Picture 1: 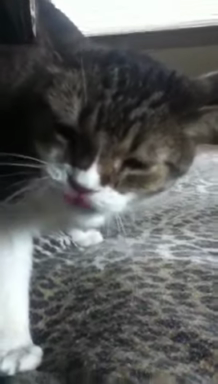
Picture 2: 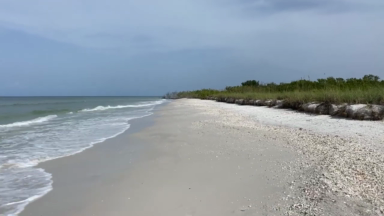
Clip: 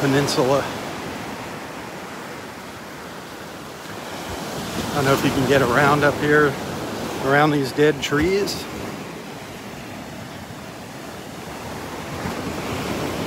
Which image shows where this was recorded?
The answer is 2